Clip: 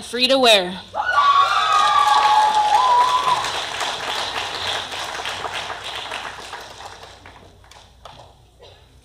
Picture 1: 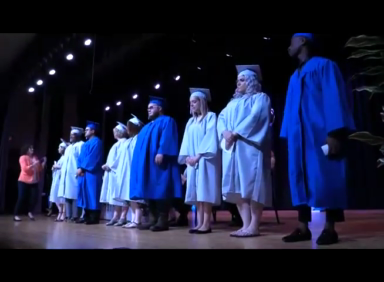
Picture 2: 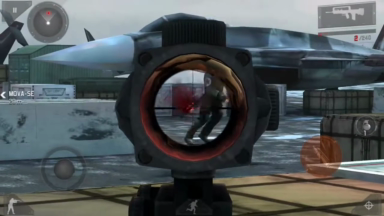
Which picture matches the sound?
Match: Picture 1